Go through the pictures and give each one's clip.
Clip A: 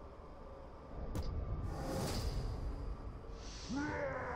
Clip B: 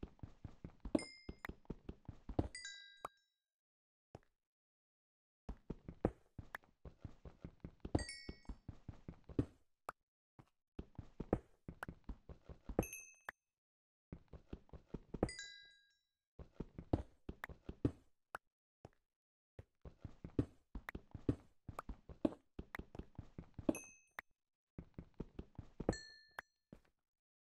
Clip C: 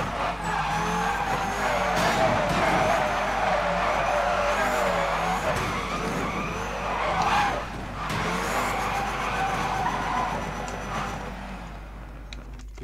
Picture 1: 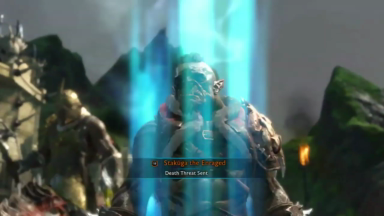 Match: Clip A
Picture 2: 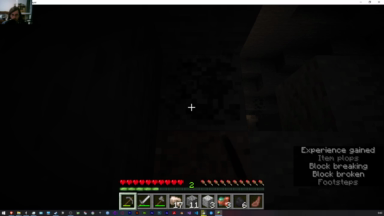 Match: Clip B